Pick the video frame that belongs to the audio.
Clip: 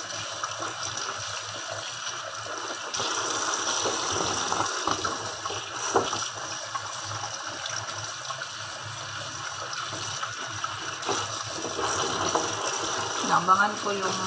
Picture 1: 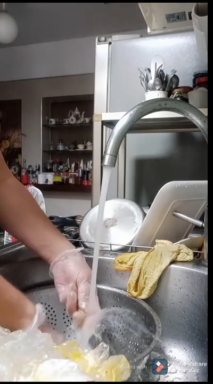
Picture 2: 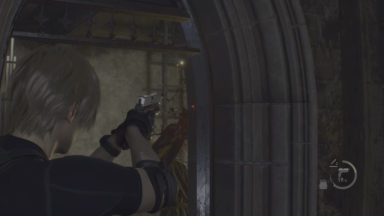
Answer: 1